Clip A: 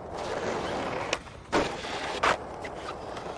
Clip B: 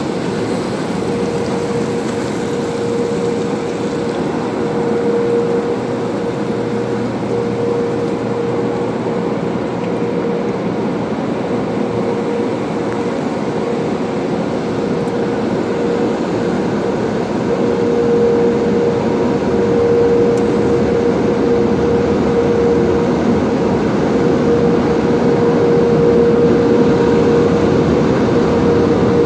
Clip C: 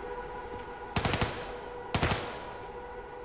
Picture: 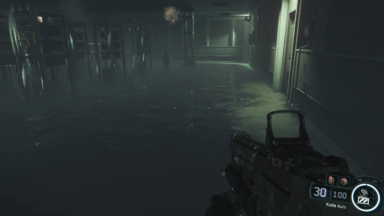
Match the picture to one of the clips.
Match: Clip C